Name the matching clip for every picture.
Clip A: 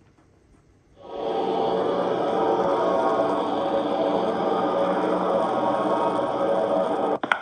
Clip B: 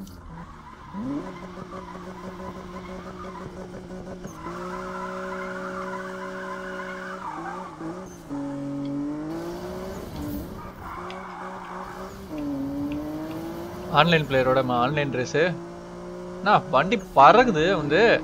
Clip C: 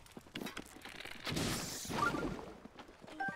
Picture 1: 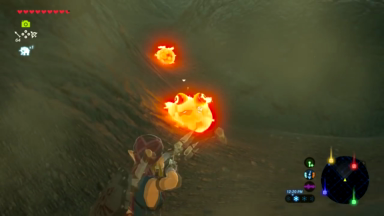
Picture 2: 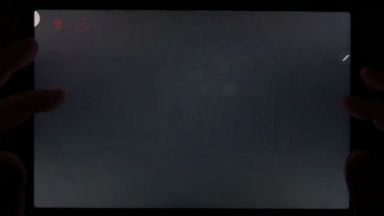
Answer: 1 C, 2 A